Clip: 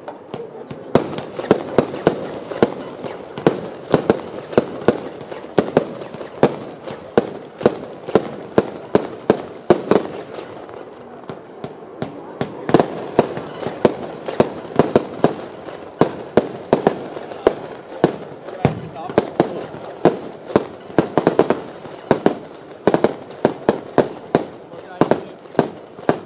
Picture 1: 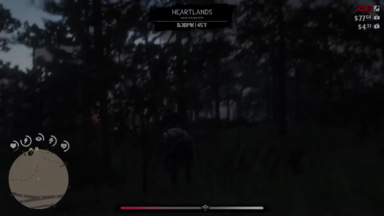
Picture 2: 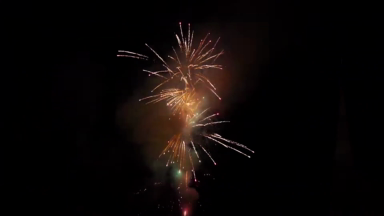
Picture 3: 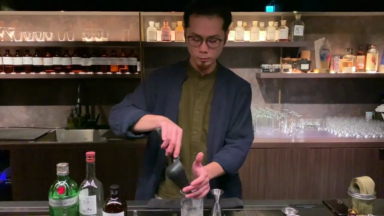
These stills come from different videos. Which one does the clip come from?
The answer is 2